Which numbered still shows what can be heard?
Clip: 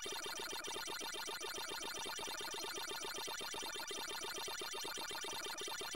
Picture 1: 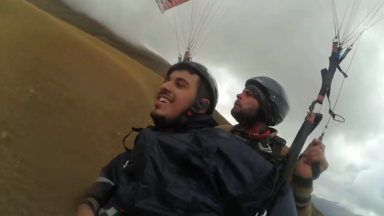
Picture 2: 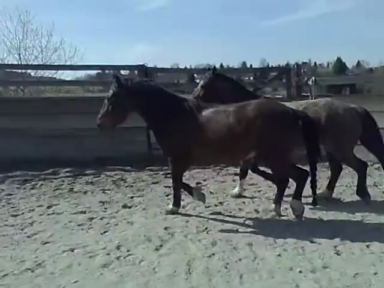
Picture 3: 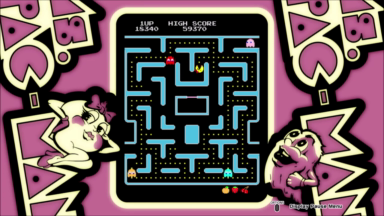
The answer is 3